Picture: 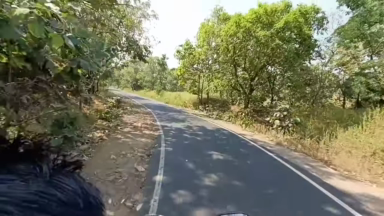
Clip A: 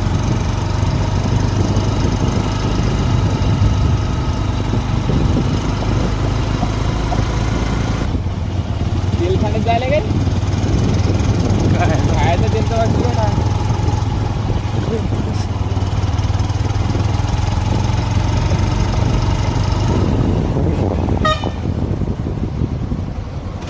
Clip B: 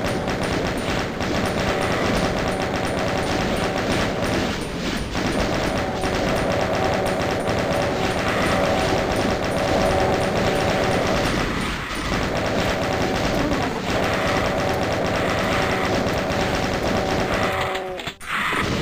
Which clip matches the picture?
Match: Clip A